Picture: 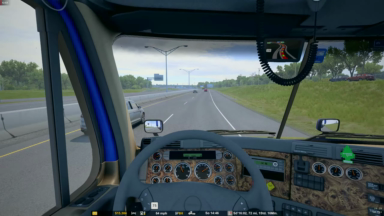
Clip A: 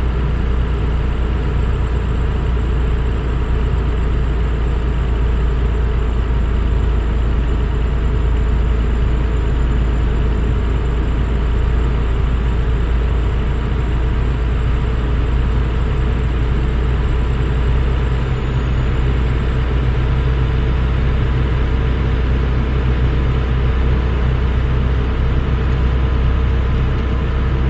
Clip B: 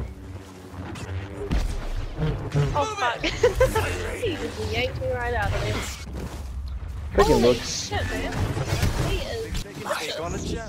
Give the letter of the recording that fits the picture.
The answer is A